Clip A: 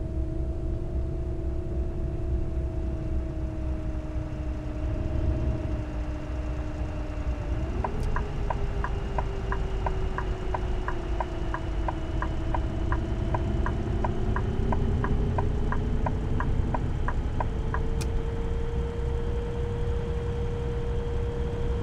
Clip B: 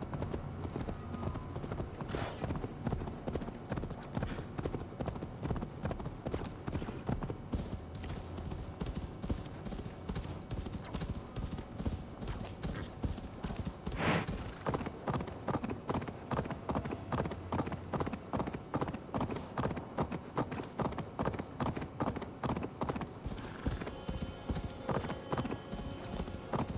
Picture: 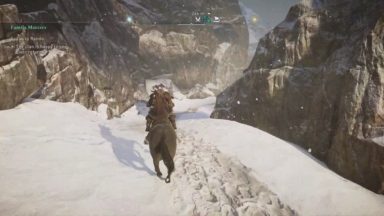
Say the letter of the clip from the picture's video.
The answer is B